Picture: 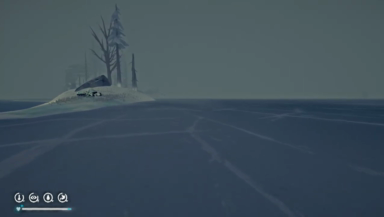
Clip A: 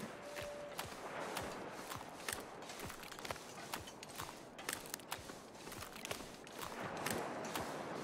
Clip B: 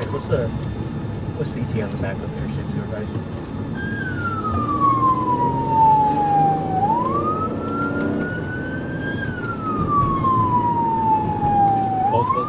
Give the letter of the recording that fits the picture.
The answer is A